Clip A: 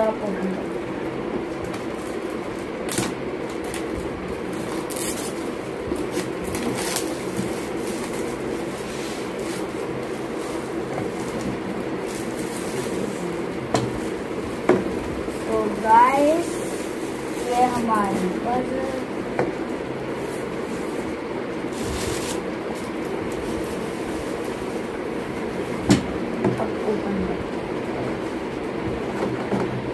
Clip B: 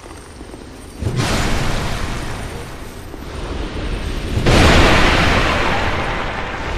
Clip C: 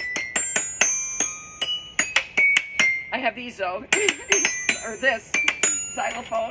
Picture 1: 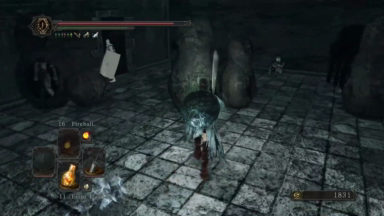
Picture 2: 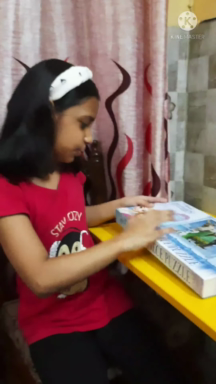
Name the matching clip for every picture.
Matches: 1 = B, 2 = A